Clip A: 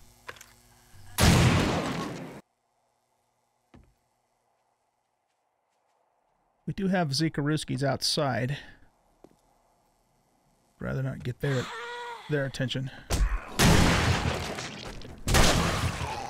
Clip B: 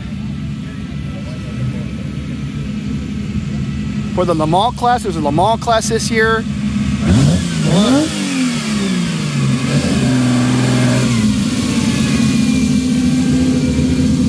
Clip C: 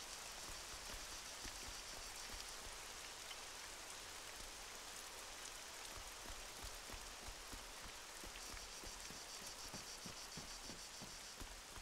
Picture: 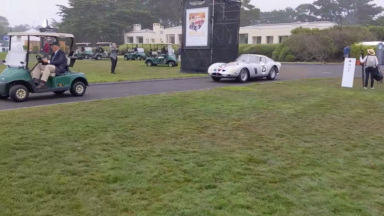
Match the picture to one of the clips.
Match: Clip B